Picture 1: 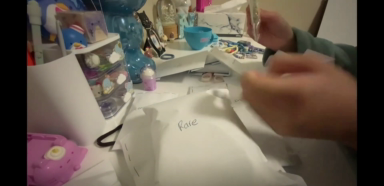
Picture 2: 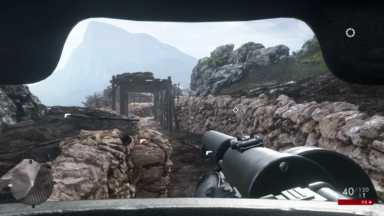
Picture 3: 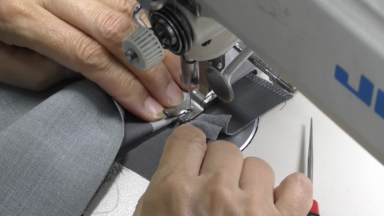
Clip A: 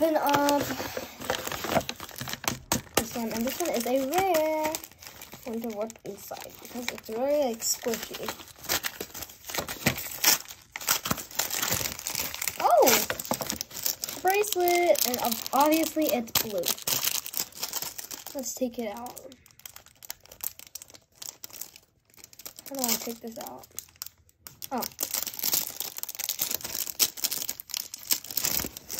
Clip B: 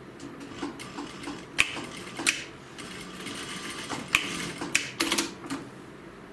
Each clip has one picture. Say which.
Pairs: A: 1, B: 3